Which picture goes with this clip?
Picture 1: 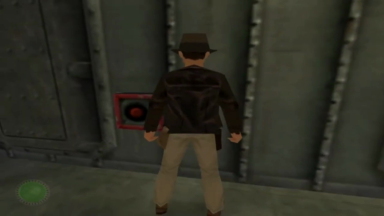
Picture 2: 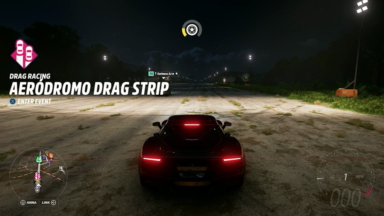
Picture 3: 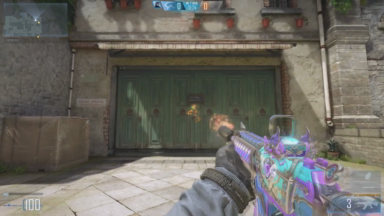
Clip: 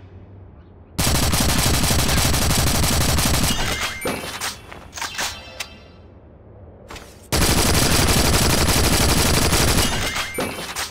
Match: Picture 3